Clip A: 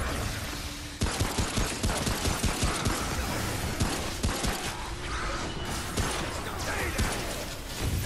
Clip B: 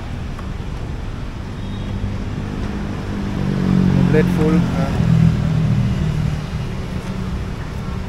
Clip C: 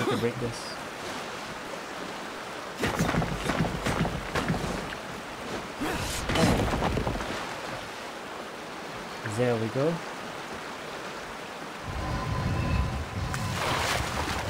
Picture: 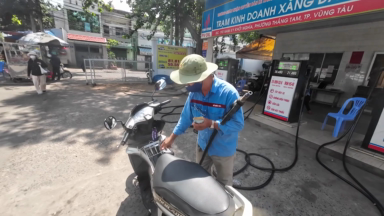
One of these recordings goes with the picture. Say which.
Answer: B